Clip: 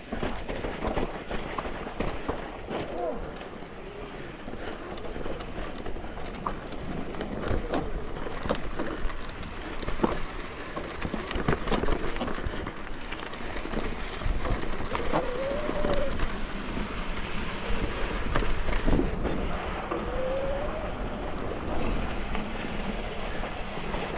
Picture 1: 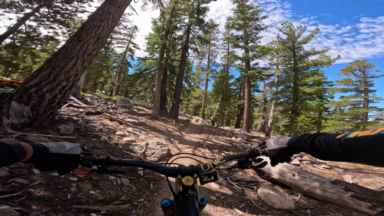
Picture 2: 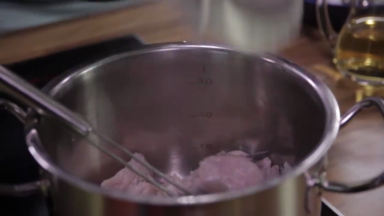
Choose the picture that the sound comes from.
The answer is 1